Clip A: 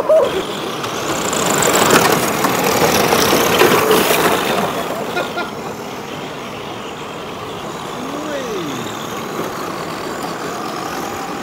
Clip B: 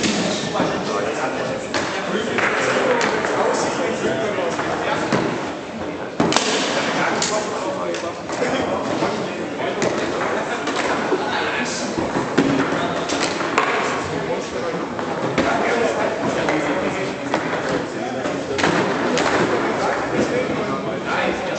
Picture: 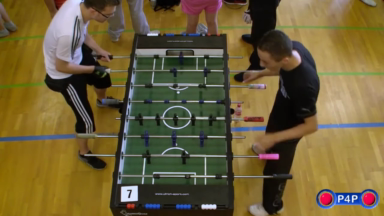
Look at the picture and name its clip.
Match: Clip B